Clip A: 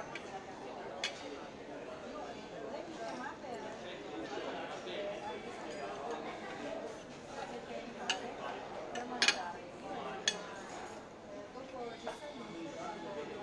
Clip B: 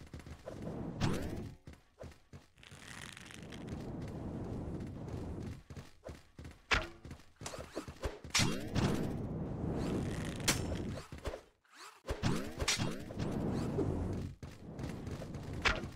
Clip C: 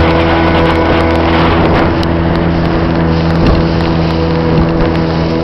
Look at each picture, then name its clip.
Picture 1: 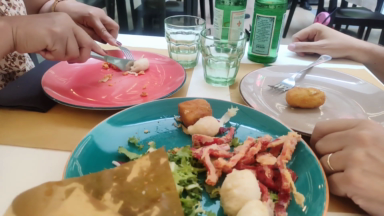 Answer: A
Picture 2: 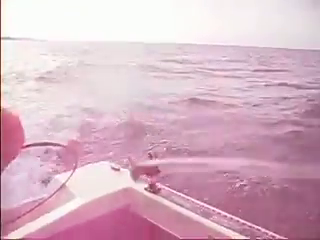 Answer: C